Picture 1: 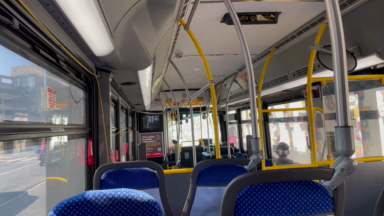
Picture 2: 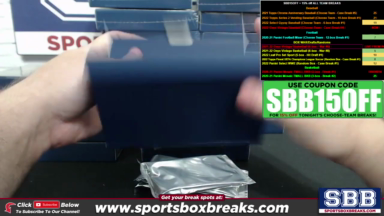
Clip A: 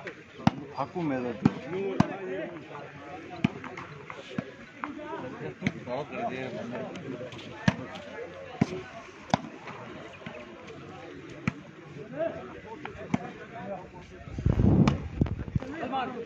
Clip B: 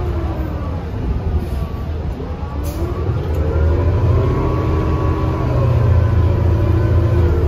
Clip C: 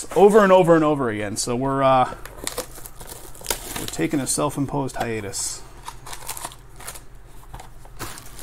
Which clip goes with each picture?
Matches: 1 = B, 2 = C